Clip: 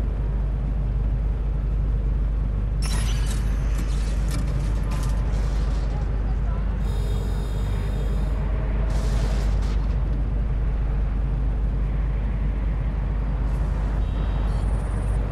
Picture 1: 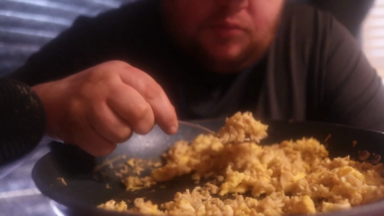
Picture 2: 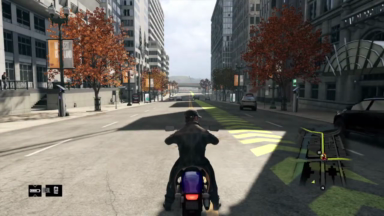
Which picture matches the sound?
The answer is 2